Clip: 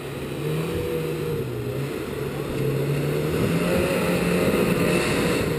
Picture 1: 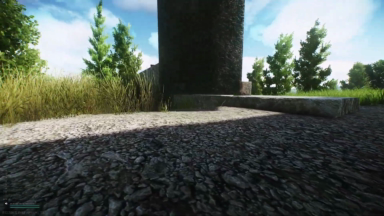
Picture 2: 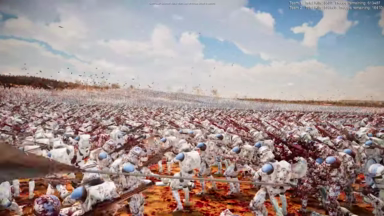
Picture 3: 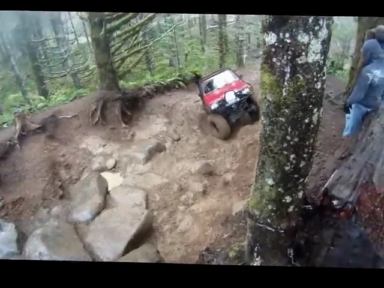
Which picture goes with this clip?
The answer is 3